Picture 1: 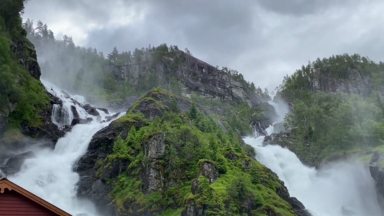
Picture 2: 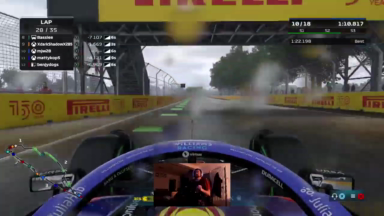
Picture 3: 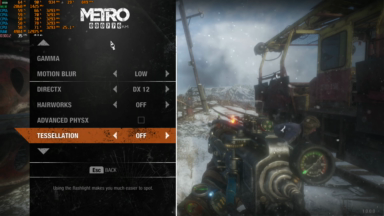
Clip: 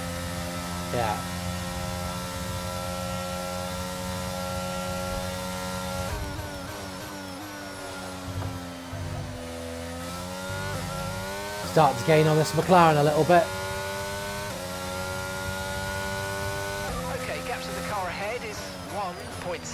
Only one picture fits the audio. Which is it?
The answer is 2